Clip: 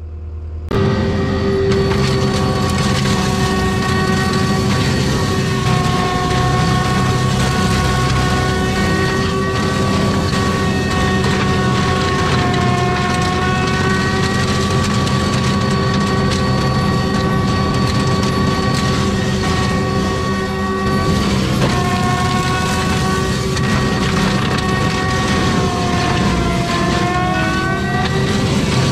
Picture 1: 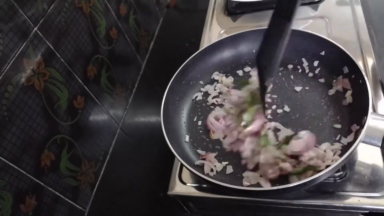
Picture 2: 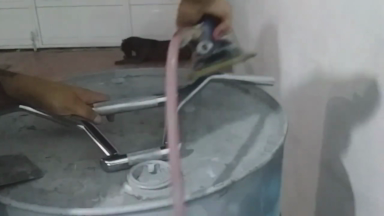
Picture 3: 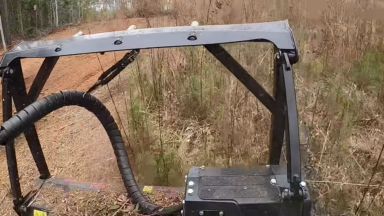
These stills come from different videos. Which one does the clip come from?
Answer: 3